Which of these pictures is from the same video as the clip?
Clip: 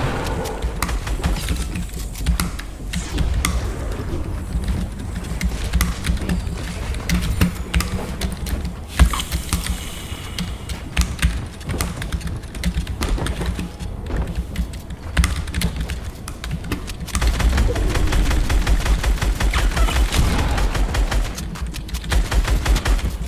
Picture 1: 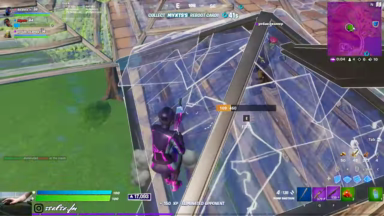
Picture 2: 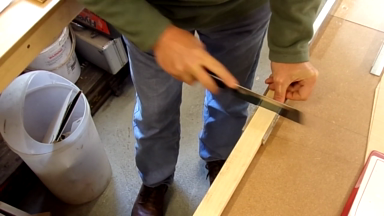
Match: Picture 1